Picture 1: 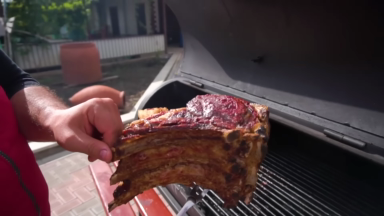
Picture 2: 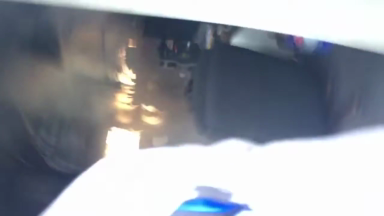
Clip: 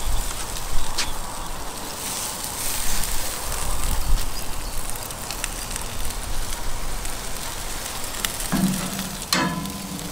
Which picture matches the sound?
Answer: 1